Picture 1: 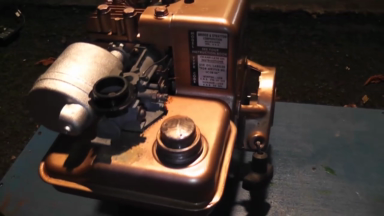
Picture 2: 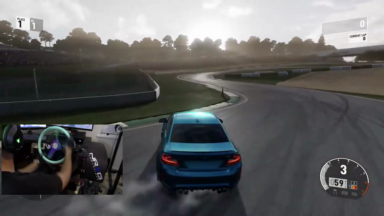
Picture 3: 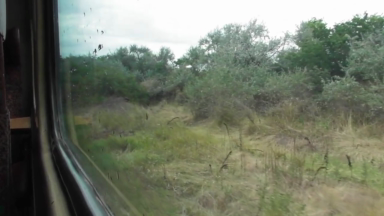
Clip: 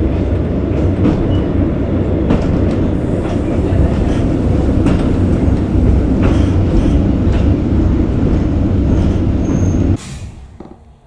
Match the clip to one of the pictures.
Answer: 3